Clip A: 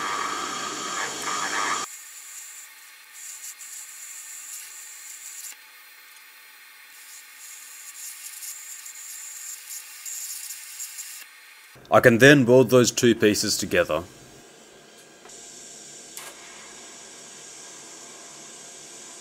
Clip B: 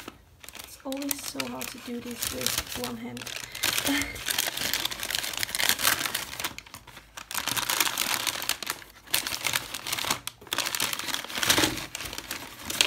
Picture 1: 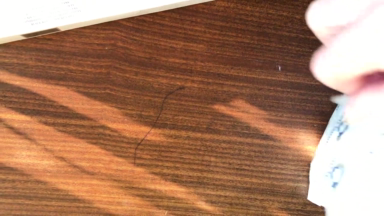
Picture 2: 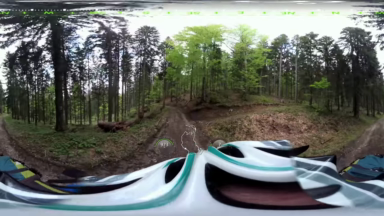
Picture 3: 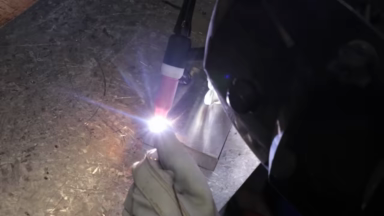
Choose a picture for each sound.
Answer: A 3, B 1